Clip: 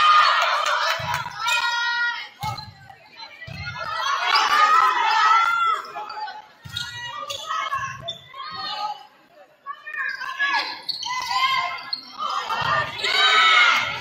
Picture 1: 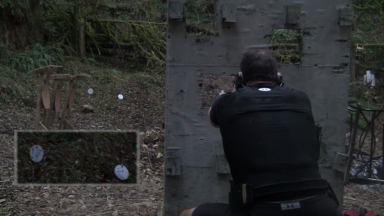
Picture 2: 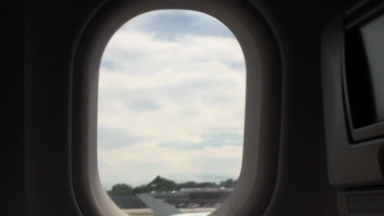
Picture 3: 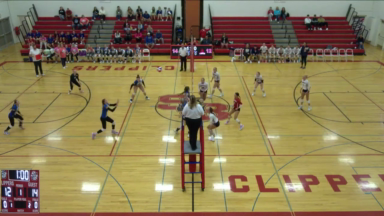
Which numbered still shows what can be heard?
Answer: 3